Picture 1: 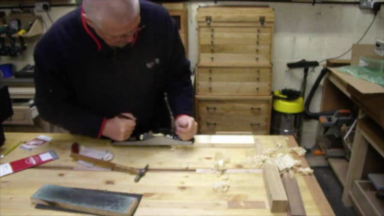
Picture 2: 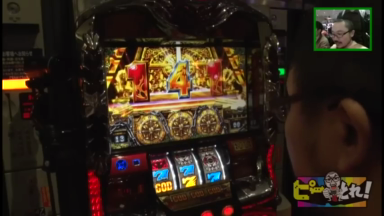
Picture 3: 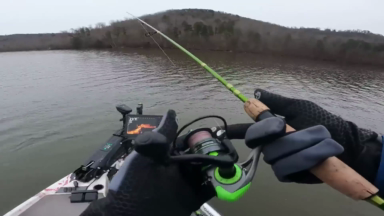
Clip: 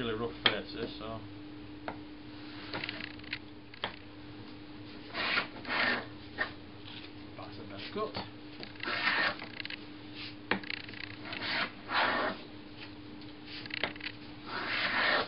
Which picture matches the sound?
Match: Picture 1